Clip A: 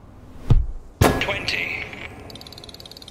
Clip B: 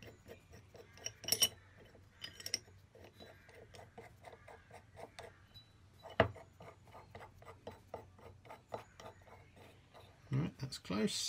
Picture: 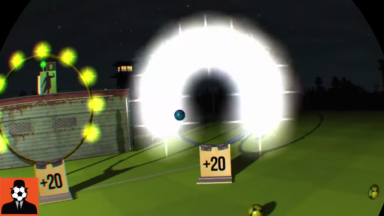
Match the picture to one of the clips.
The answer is A